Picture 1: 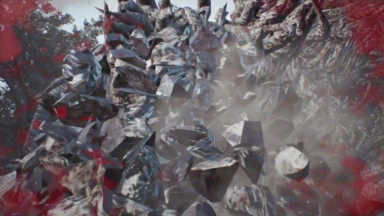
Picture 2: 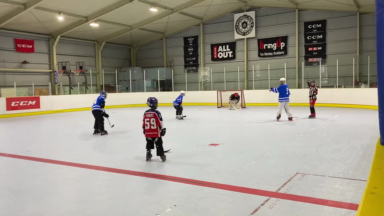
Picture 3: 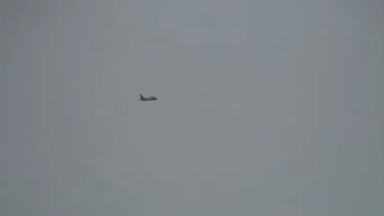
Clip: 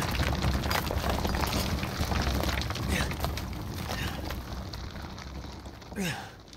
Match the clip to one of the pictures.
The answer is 1